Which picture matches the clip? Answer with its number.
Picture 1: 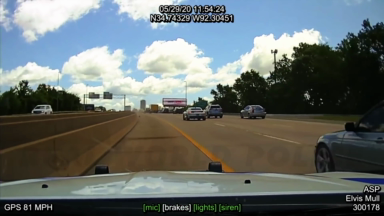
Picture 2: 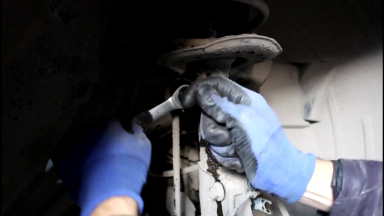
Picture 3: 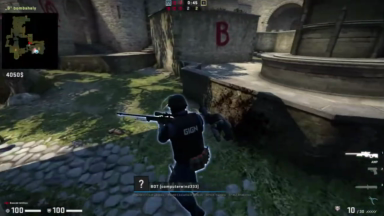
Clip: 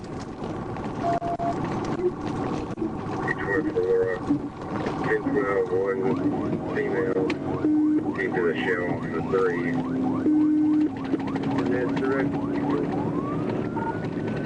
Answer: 1